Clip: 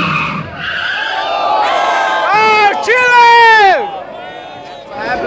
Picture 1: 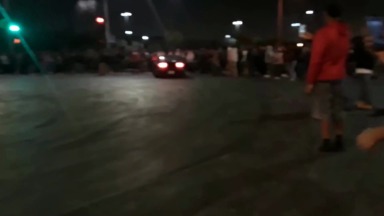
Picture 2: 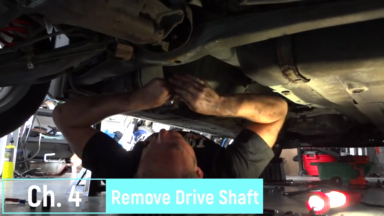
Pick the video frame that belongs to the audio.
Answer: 1